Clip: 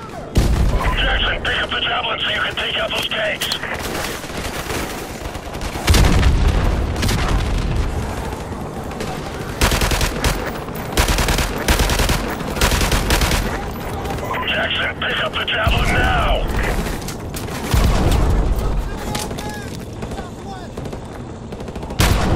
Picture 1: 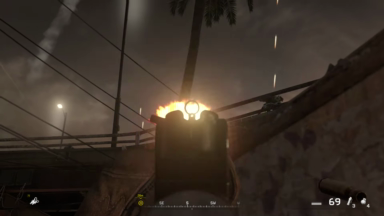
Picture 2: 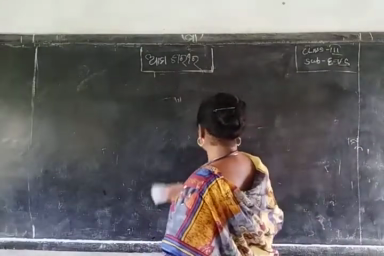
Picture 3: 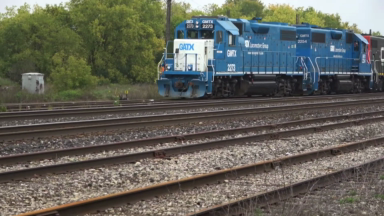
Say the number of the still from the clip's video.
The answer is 1